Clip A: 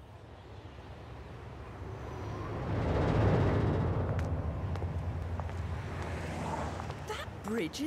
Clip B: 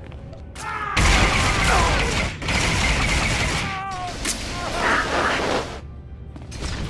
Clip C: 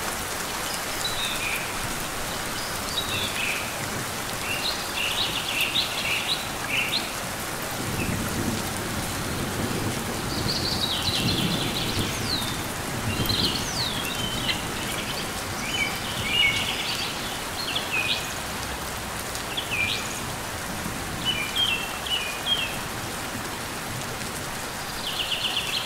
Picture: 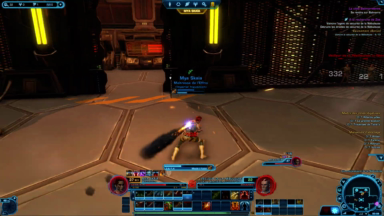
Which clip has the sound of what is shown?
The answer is B